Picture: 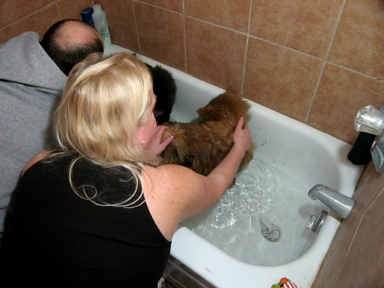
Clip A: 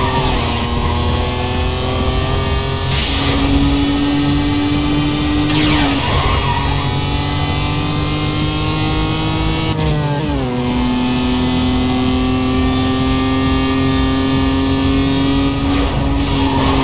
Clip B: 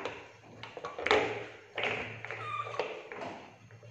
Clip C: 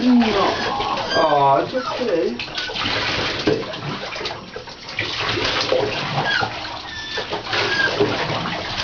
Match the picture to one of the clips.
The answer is C